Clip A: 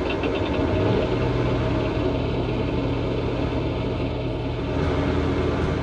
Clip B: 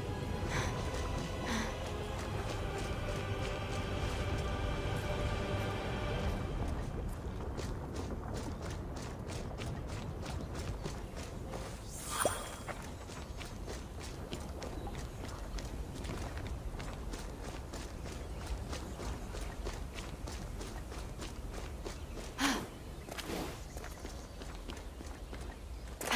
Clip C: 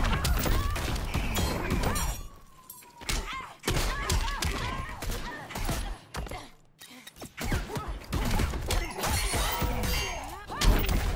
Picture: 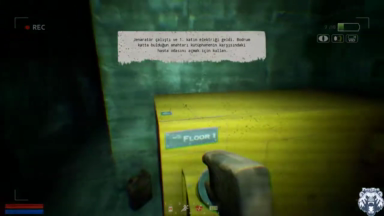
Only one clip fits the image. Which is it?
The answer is A